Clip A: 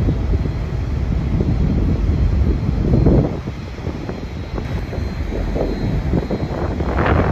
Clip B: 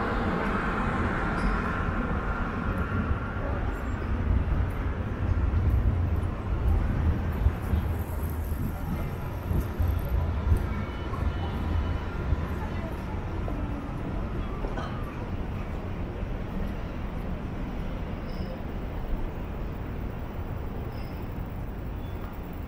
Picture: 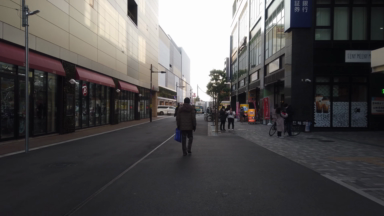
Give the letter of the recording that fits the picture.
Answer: B